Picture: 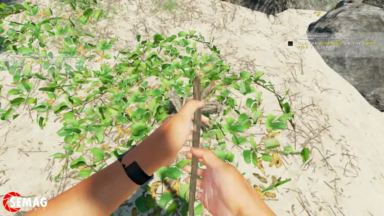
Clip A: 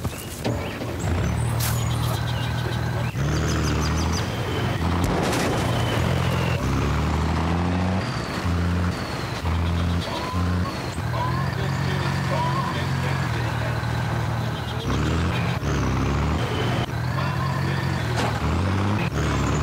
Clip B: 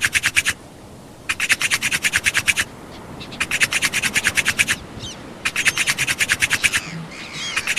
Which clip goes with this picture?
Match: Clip B